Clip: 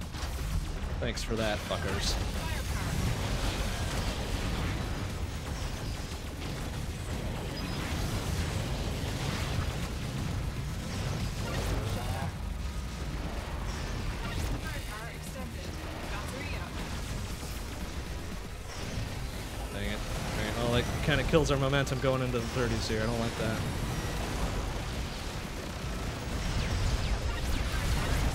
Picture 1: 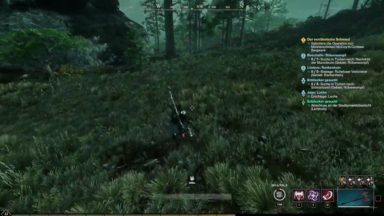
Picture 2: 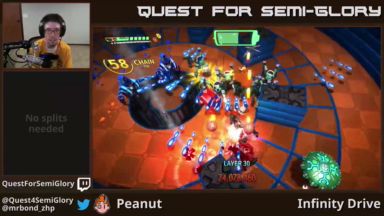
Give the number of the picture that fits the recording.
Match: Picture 2